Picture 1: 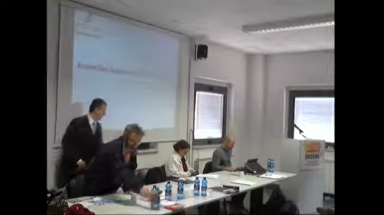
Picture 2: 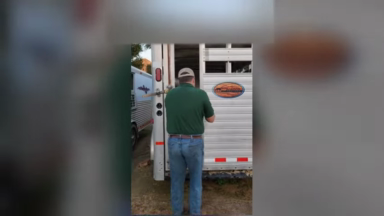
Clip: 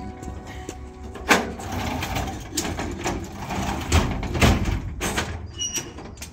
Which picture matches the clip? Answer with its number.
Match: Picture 2